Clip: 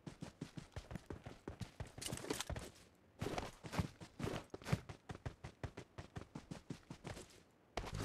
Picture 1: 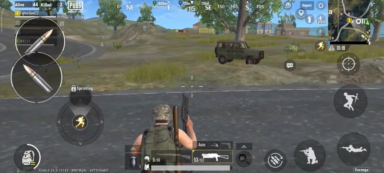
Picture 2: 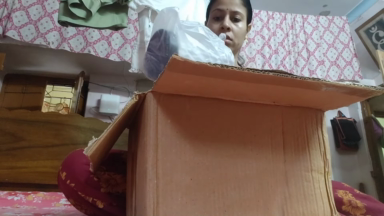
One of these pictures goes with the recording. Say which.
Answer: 1